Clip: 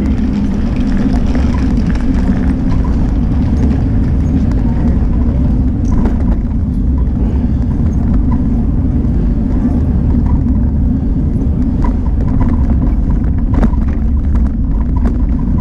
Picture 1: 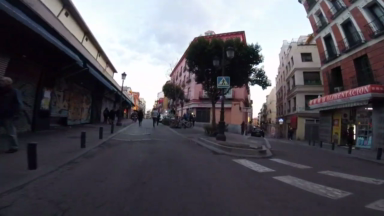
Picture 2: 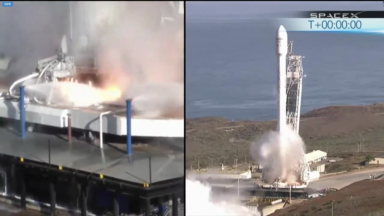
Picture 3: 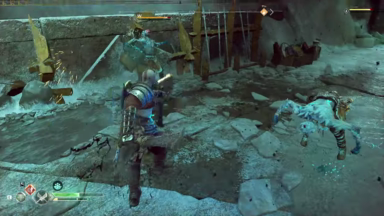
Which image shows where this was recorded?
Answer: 1